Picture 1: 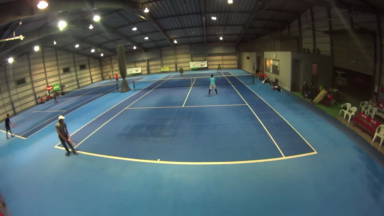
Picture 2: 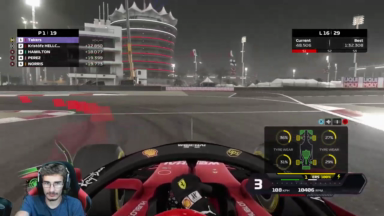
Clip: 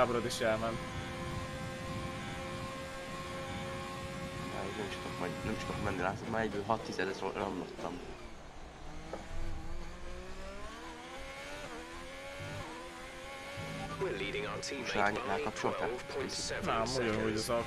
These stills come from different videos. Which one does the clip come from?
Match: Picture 2